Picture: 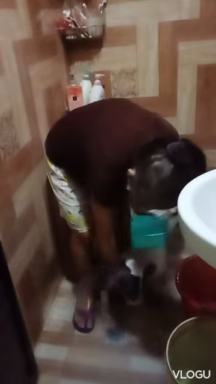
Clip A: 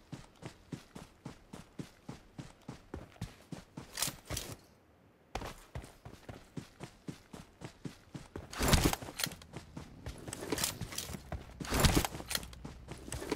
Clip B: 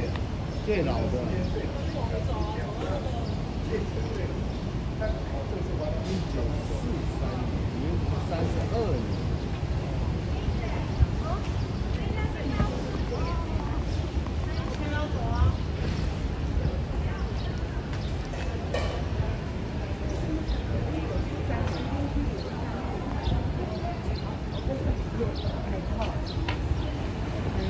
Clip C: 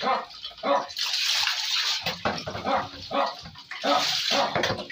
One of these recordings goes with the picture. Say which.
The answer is C